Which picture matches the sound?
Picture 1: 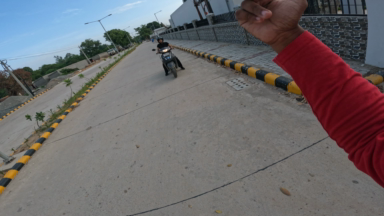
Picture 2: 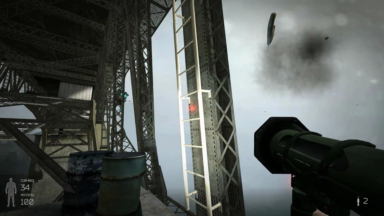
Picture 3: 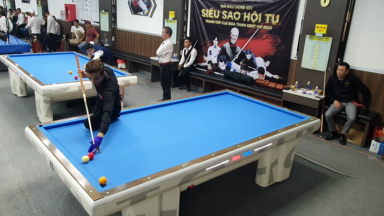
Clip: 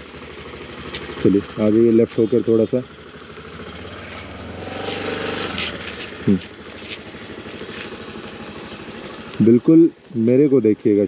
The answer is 1